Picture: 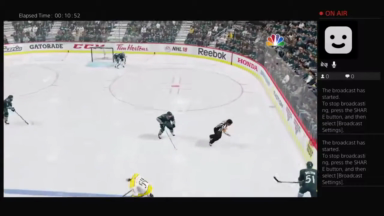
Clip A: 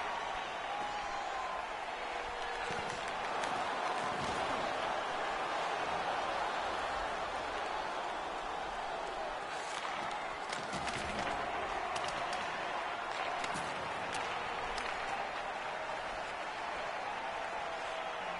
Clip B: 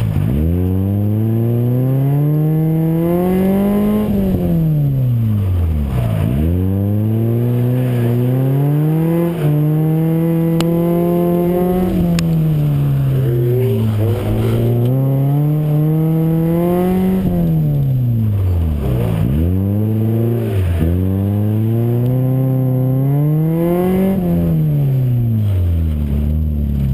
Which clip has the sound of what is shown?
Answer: A